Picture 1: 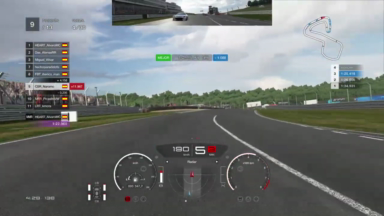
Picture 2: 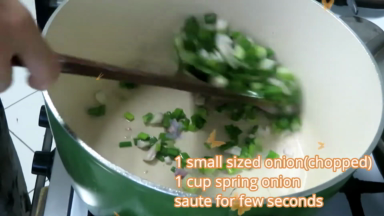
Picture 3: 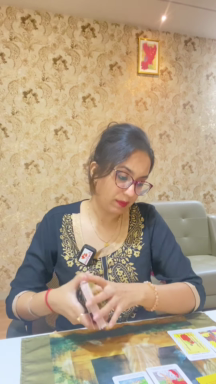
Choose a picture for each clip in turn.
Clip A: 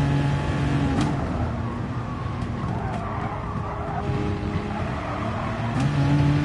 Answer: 1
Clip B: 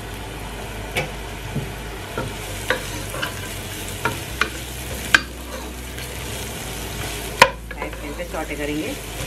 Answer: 2